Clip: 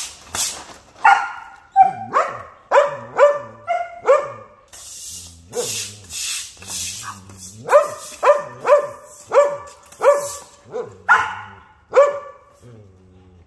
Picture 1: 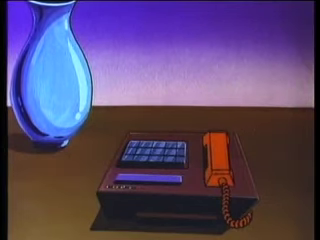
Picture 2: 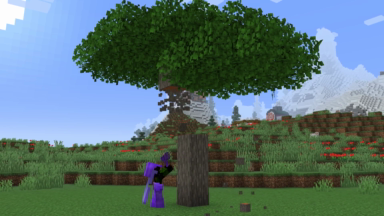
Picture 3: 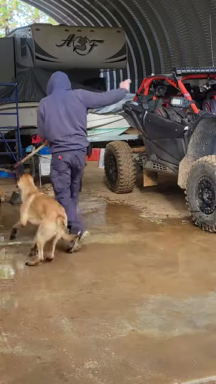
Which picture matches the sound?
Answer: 3